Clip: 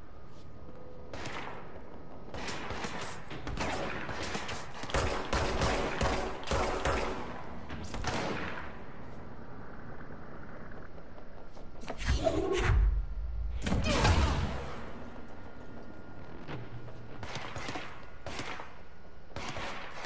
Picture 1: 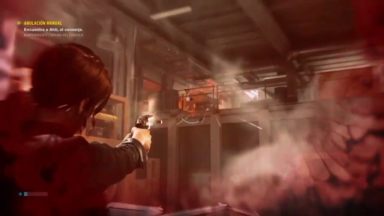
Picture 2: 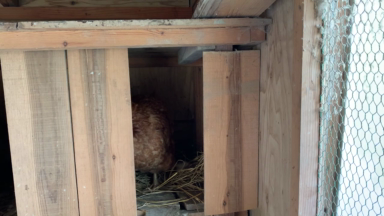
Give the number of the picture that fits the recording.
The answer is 1